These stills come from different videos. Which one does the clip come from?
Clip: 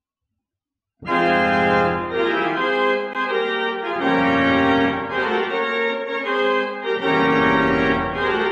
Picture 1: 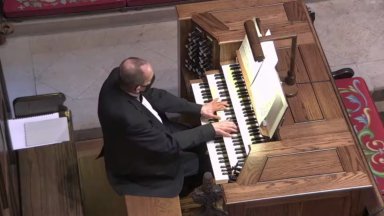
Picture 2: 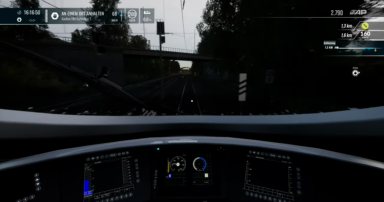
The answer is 1